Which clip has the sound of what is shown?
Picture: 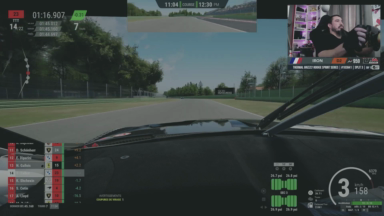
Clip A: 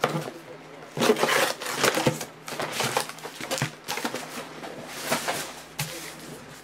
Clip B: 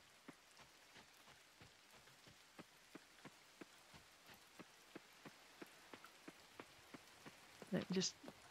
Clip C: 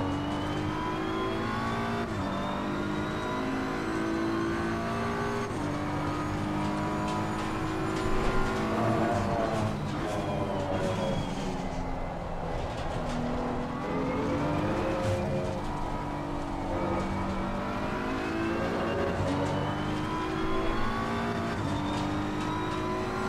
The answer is C